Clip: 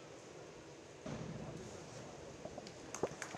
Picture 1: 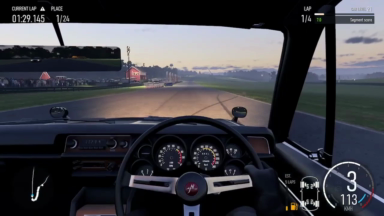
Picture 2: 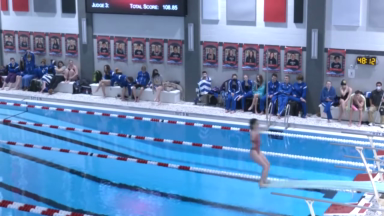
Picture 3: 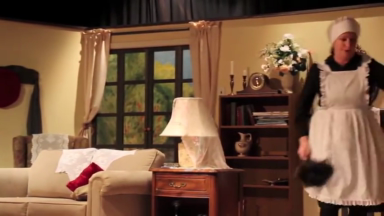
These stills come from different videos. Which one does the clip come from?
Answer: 2